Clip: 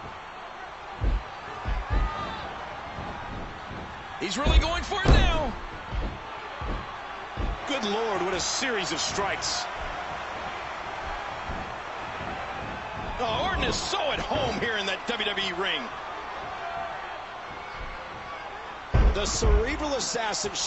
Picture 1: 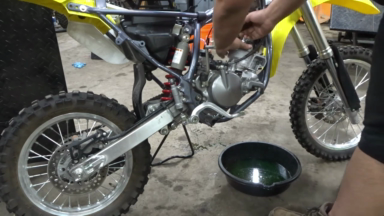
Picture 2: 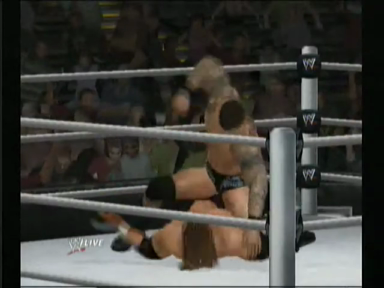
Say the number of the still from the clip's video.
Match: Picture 2